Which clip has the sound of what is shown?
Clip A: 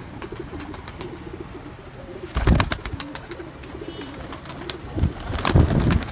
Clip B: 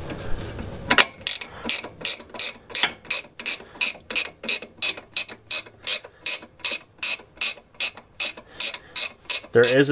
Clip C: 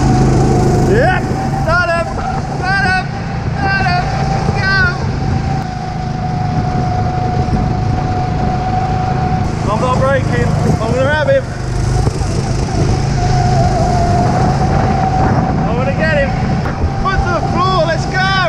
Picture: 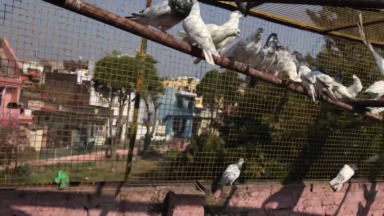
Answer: A